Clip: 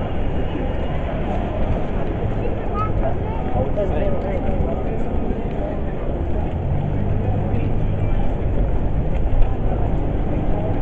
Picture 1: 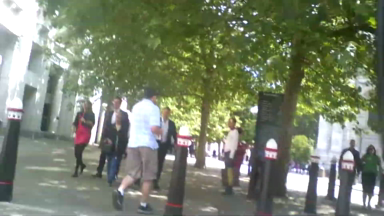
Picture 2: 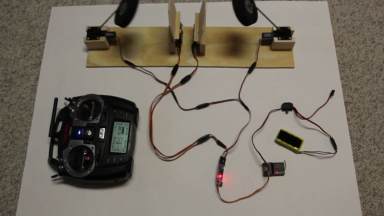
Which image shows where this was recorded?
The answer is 1